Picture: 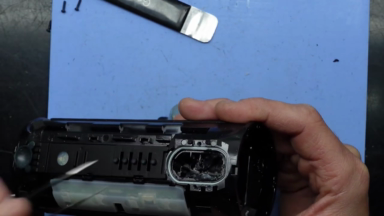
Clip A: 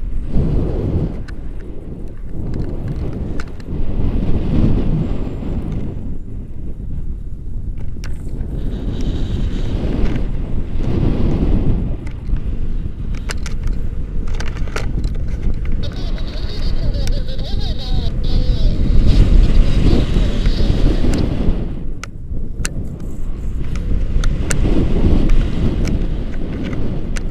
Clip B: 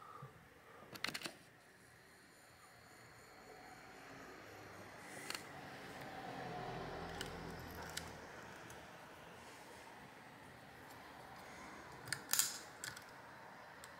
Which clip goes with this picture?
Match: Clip B